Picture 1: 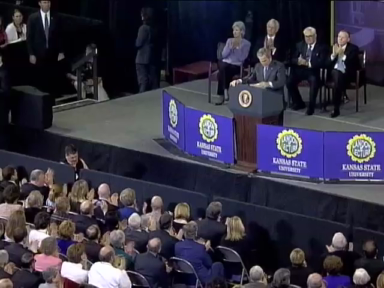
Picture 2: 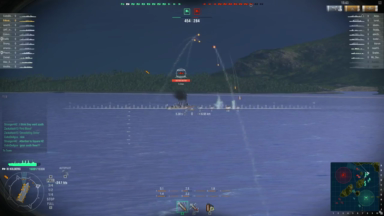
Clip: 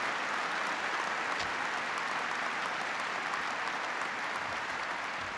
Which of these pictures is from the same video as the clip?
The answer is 1